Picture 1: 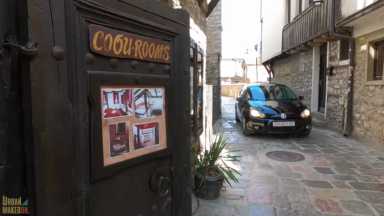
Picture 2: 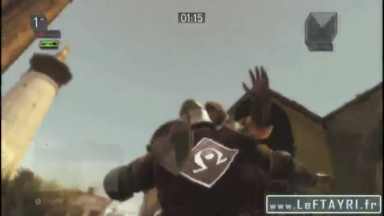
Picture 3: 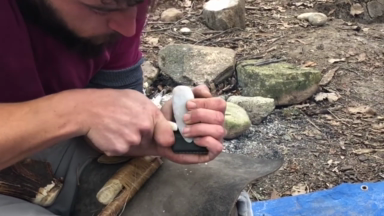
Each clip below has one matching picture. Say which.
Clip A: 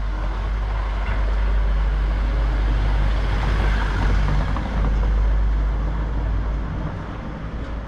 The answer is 1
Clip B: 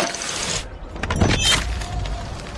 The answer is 2